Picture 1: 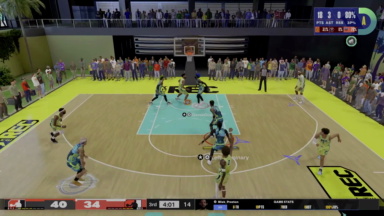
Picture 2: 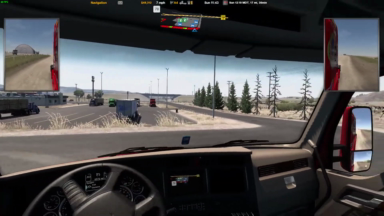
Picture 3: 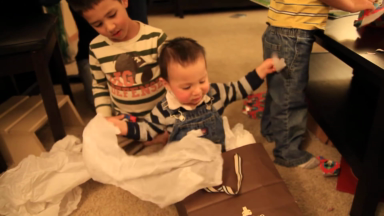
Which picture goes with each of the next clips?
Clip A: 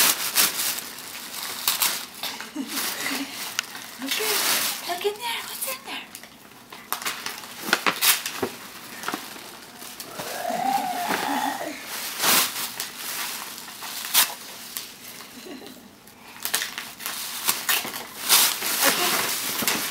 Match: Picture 3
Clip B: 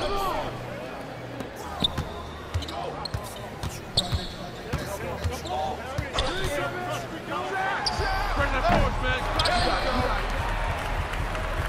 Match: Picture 1